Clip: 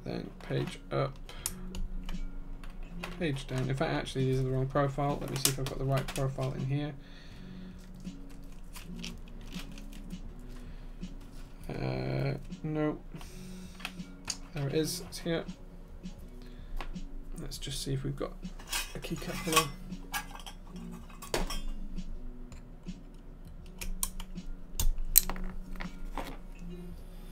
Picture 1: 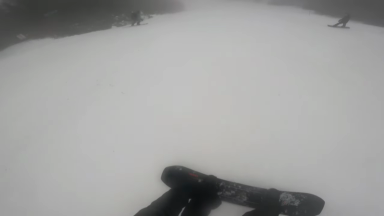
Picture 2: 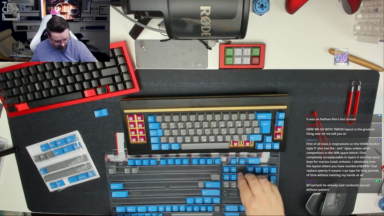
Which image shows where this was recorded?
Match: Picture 2